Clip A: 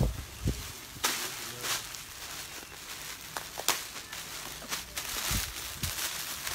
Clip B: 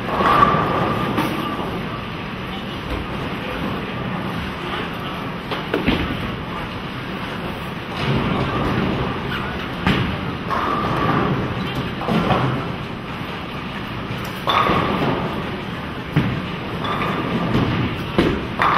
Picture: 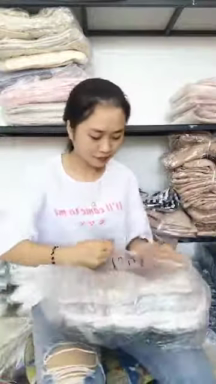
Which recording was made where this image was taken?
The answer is A